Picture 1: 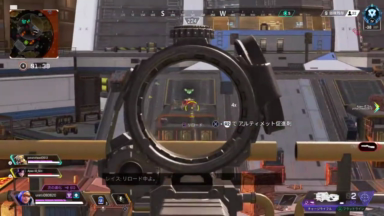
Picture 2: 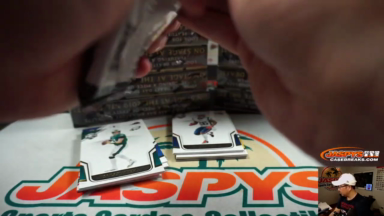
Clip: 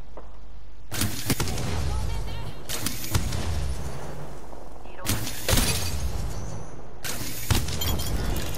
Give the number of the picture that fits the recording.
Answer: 1